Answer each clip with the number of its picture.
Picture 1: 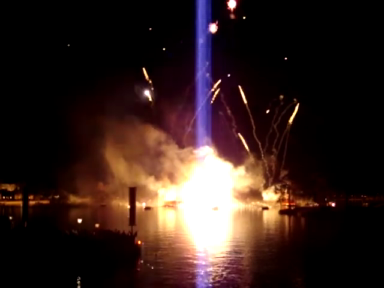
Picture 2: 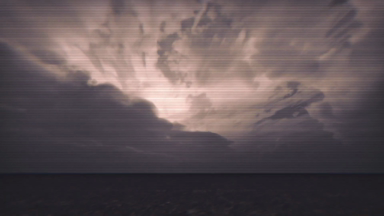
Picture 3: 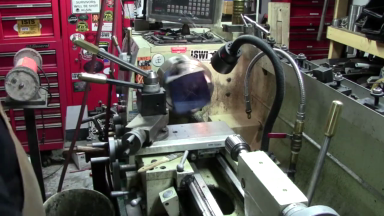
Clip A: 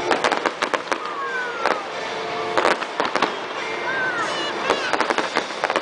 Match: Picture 1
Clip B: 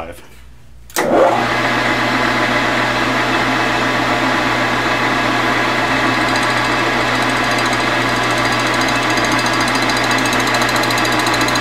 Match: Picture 3